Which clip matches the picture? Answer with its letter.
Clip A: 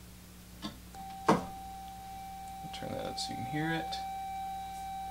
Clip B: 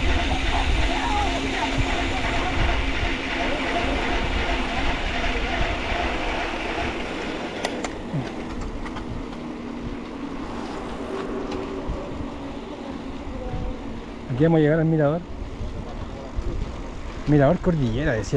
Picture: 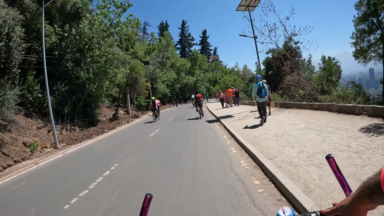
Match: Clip B